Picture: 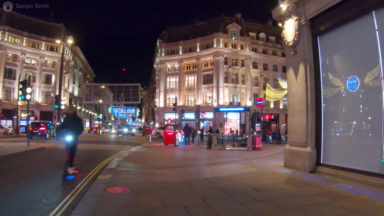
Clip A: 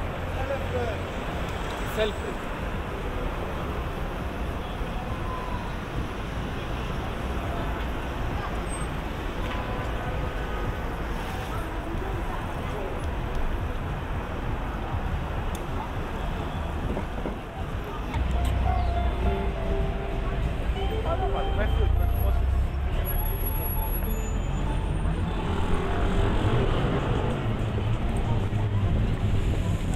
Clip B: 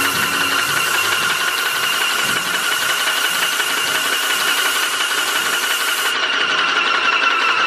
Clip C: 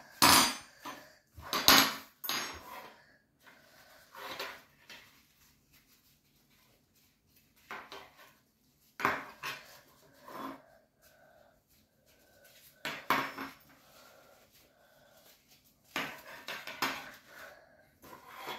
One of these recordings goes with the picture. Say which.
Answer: A